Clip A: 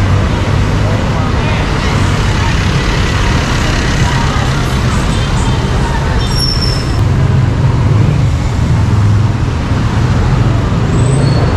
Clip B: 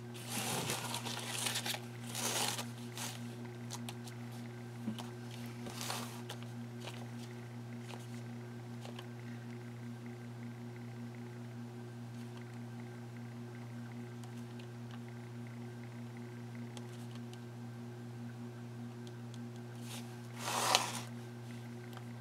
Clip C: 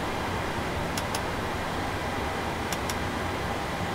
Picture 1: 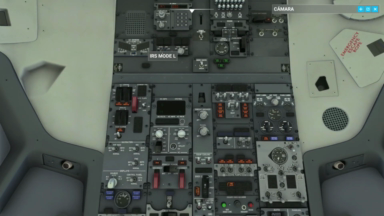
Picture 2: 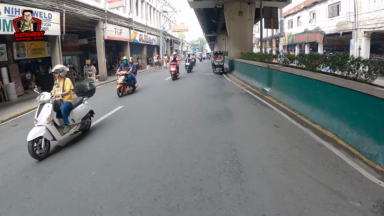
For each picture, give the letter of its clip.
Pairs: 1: C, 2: A